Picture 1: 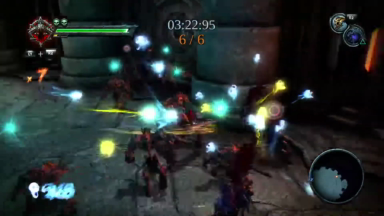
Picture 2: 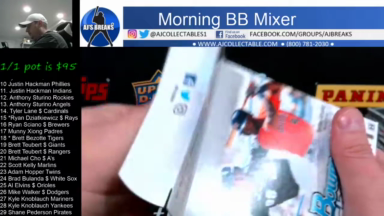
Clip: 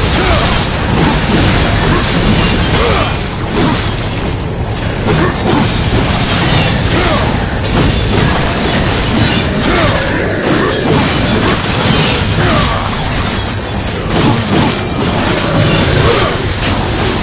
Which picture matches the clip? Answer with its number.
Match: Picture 1